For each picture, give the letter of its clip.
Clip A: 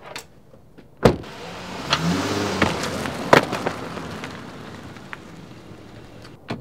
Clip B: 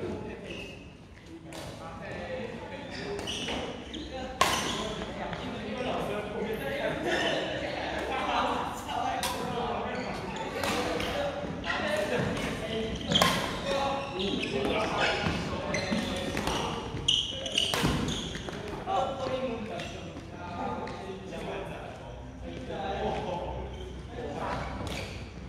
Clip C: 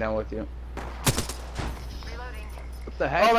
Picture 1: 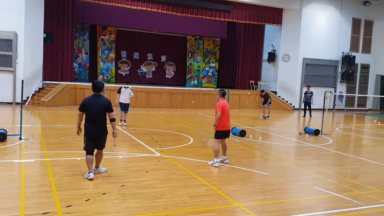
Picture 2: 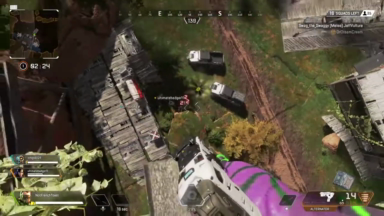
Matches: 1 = B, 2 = C